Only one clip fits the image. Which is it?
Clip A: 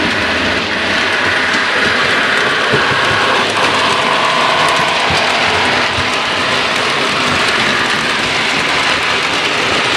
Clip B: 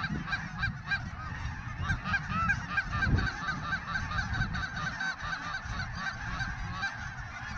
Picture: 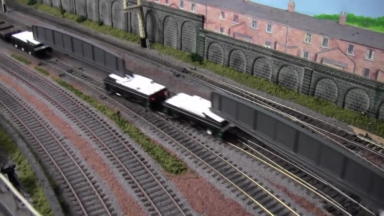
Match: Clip A